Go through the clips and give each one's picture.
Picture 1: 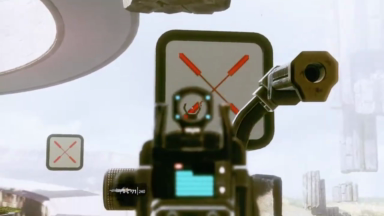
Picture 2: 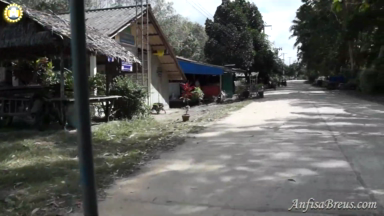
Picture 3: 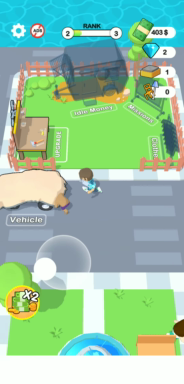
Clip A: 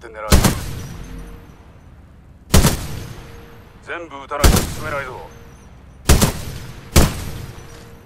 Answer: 1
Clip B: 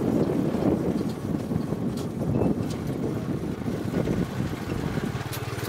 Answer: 2